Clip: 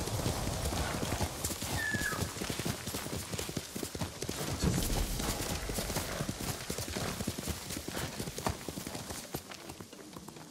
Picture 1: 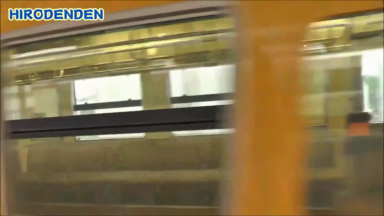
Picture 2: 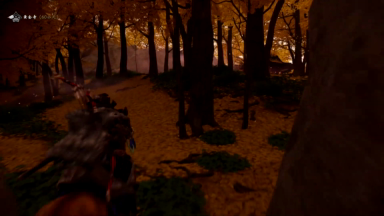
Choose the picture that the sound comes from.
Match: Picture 2